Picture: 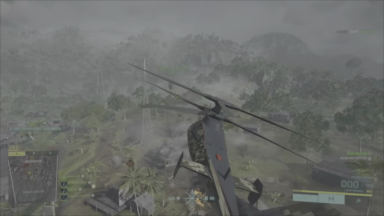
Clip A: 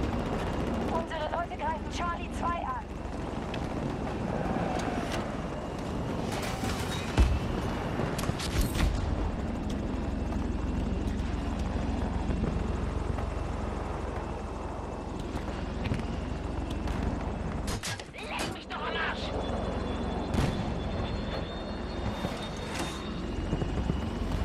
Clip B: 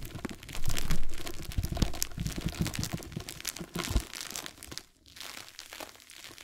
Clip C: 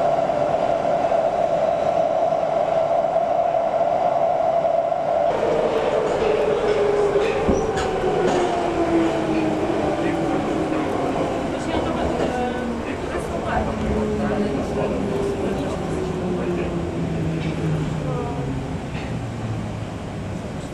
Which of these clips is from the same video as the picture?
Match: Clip A